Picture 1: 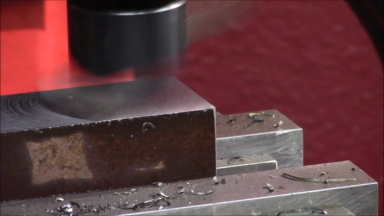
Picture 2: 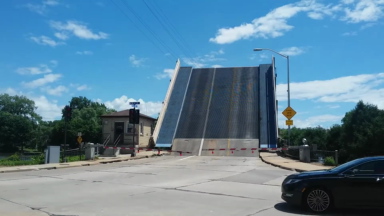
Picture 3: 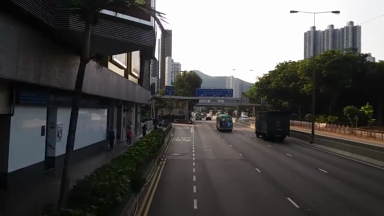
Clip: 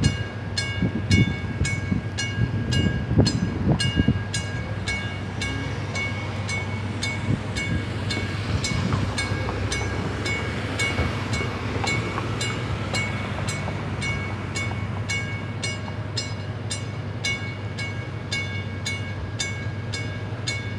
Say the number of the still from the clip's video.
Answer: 2